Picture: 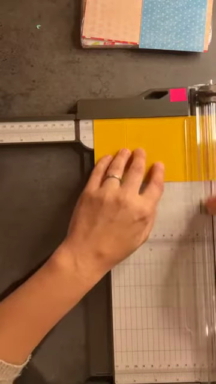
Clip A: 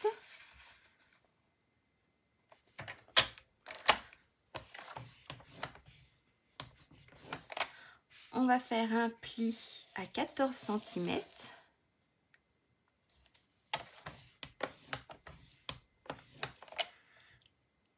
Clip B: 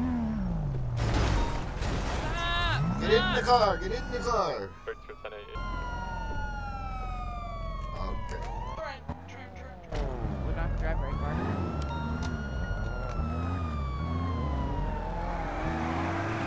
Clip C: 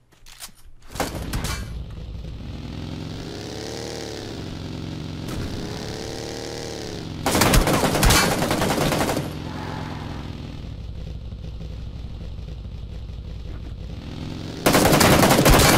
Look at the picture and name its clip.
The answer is A